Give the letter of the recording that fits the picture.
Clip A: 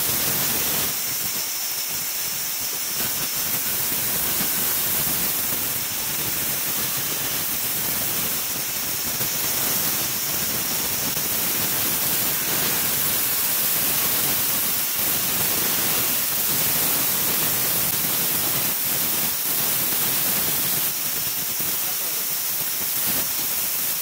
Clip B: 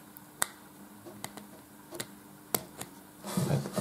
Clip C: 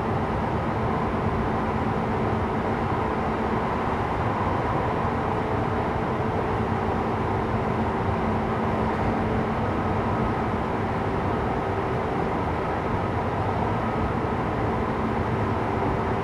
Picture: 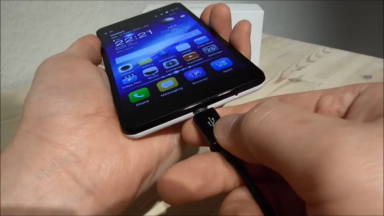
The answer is B